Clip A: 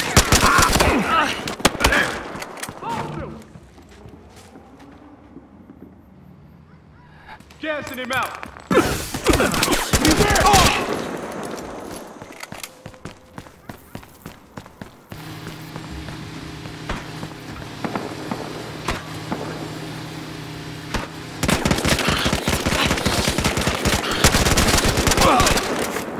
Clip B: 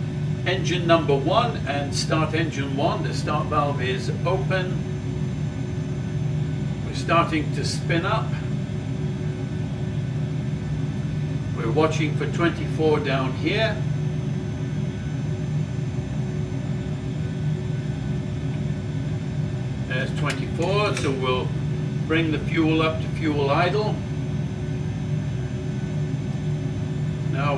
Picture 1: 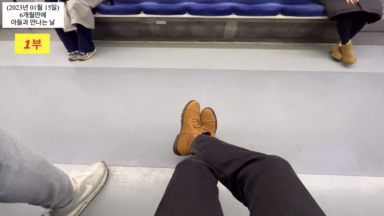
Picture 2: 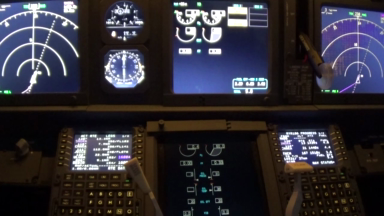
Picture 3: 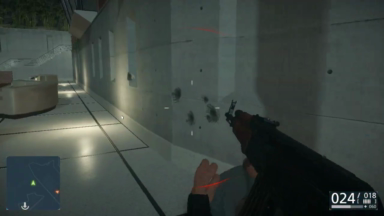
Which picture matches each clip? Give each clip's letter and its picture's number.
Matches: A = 3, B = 2